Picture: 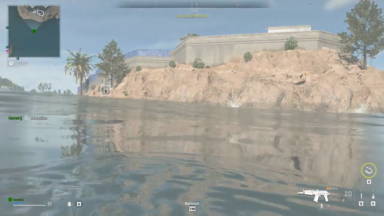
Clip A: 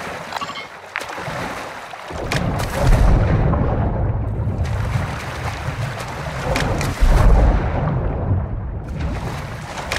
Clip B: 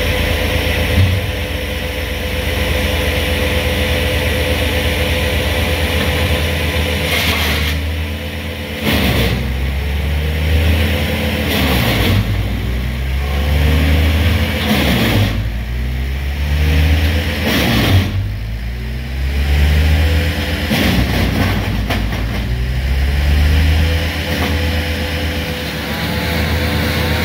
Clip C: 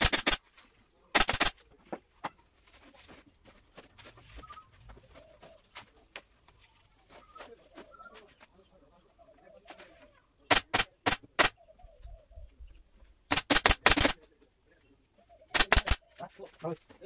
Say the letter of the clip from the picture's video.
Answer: A